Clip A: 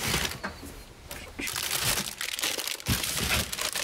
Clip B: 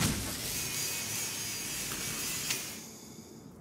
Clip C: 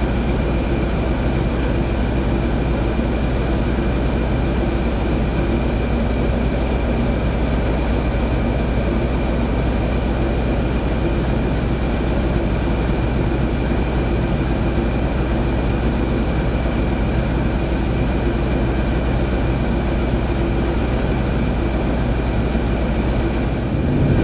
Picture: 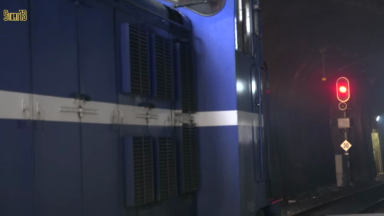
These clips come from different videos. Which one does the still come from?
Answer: C